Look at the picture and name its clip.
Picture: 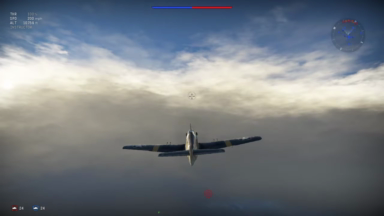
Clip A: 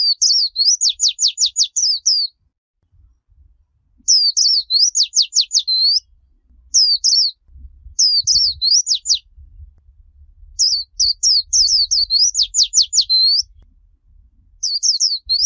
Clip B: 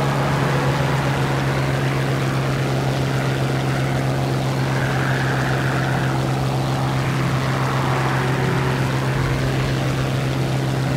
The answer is B